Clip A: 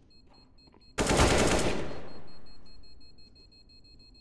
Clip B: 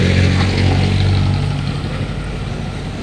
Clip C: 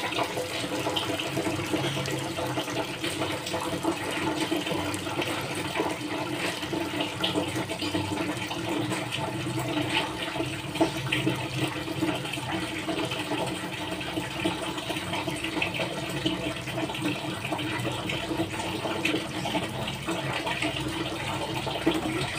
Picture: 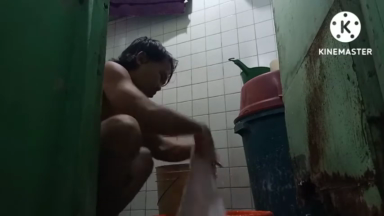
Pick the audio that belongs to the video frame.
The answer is C